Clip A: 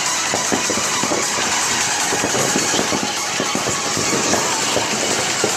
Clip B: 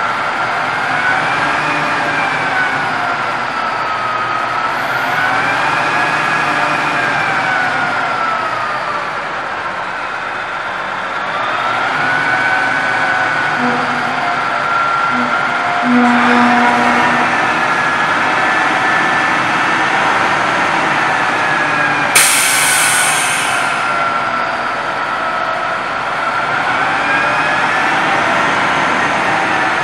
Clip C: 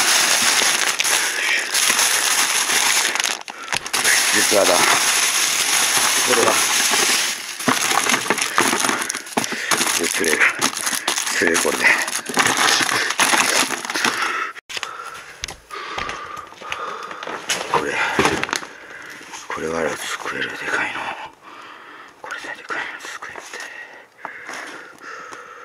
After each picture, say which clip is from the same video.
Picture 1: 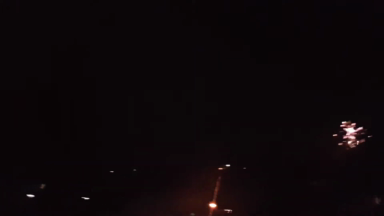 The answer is A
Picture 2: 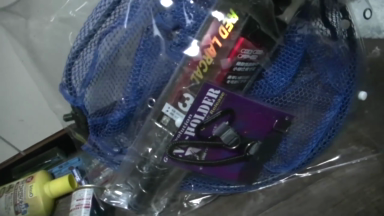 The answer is C